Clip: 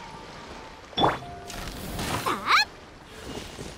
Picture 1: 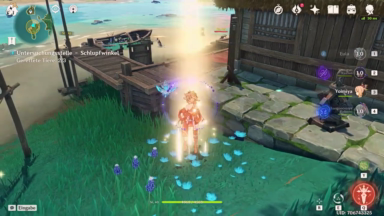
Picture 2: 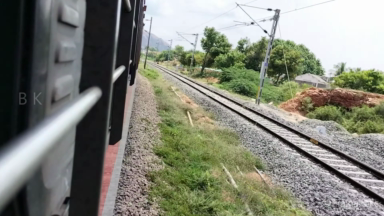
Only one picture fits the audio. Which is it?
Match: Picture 1